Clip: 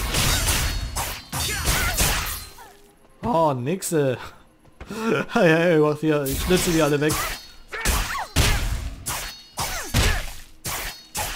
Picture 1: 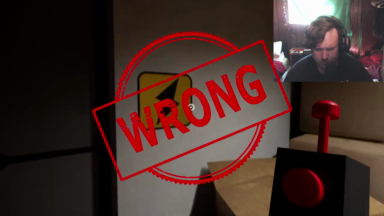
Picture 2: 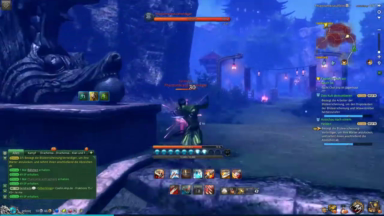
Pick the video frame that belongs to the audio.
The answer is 2